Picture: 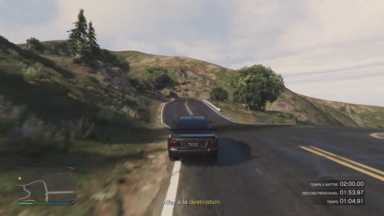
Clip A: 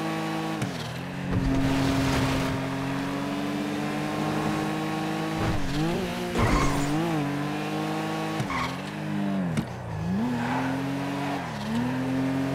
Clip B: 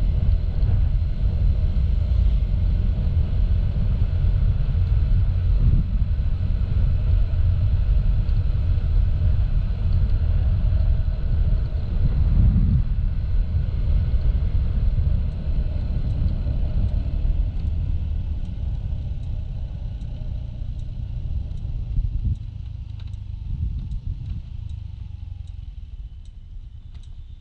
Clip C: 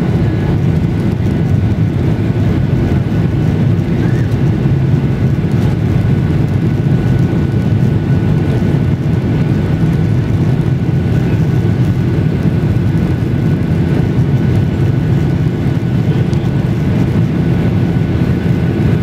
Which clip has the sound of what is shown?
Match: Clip A